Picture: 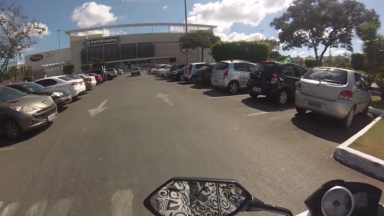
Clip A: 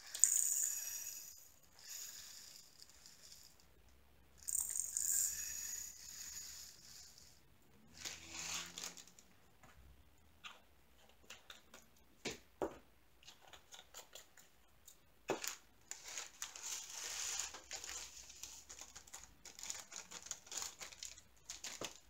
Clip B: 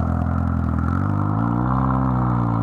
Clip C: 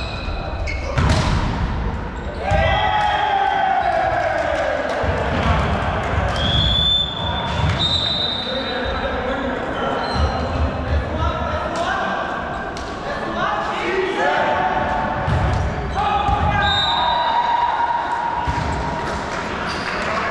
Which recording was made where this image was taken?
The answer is B